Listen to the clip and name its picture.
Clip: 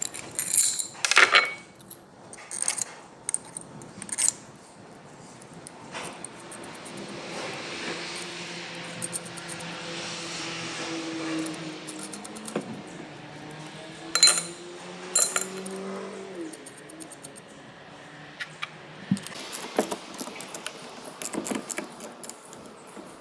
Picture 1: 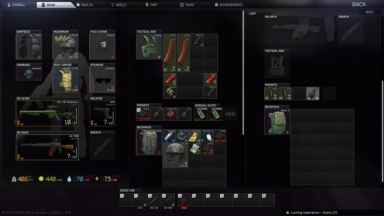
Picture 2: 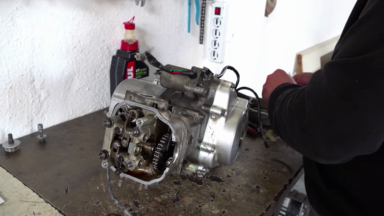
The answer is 2